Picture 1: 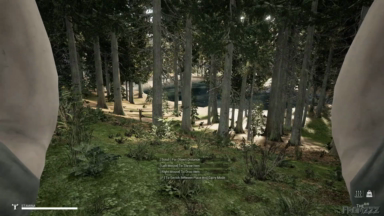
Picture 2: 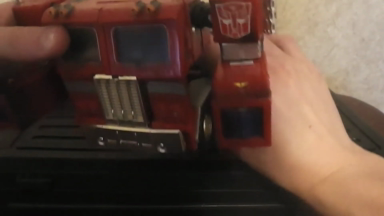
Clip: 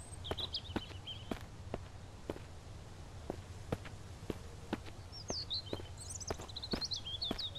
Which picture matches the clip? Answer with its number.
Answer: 1